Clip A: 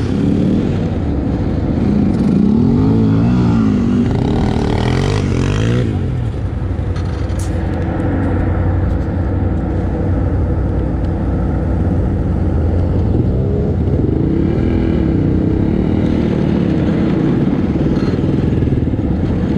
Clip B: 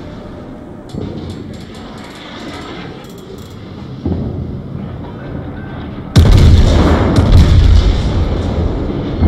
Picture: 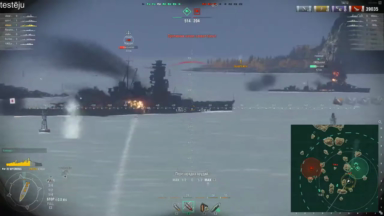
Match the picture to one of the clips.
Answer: B